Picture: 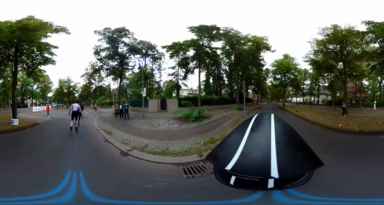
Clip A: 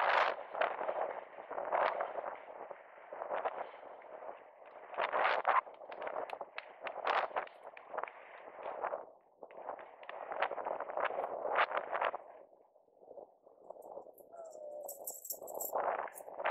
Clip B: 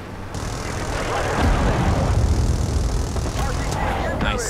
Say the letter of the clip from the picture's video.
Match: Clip A